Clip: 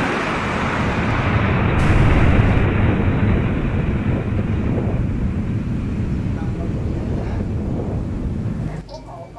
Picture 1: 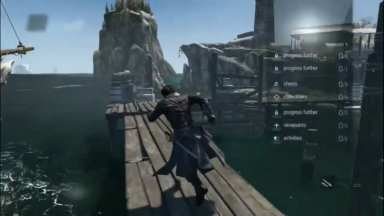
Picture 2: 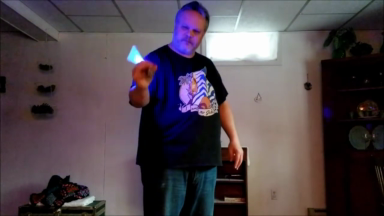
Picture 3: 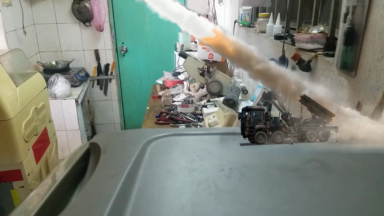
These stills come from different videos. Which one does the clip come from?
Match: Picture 3